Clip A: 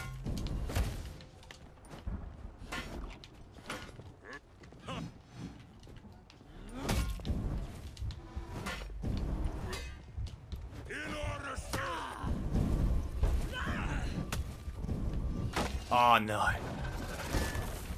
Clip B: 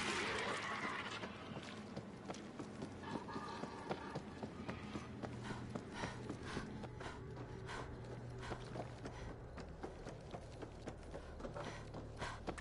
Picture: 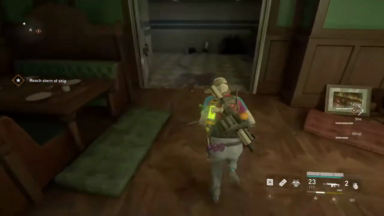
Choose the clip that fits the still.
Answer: B